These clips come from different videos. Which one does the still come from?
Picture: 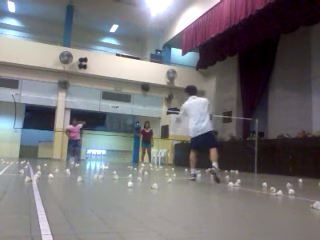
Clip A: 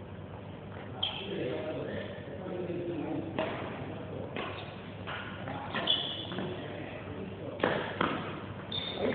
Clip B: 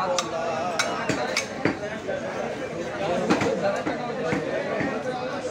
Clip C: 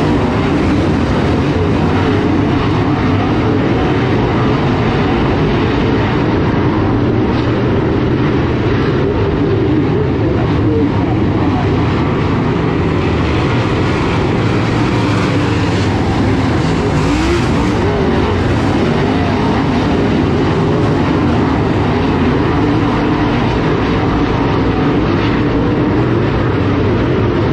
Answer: A